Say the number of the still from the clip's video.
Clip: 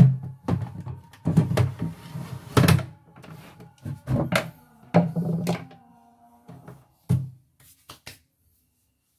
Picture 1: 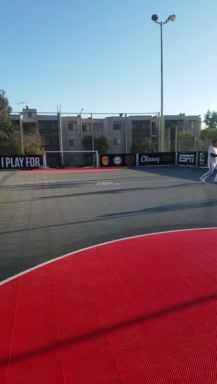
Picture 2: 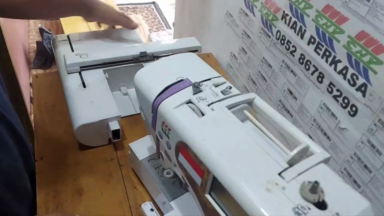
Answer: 2